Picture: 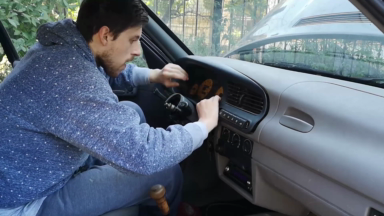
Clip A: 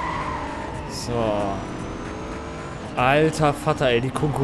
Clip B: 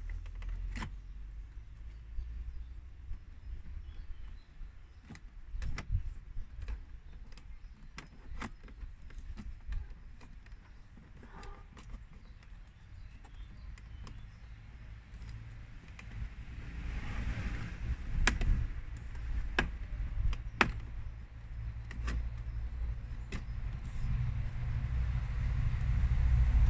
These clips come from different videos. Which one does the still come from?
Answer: B